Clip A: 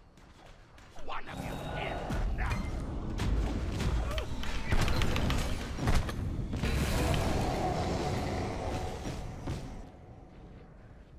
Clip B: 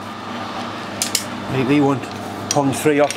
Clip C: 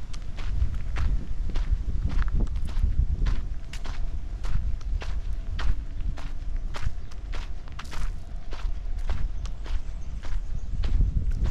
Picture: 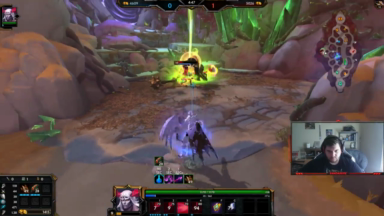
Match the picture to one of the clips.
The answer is A